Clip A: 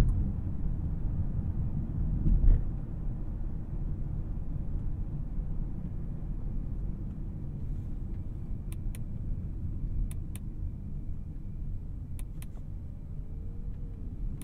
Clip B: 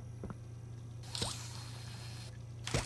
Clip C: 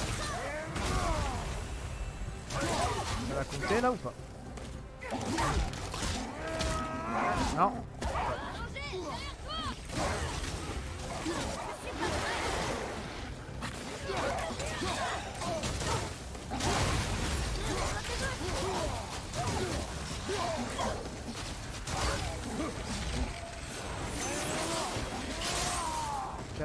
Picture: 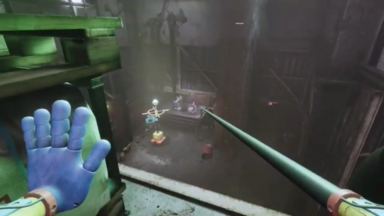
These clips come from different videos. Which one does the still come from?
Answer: B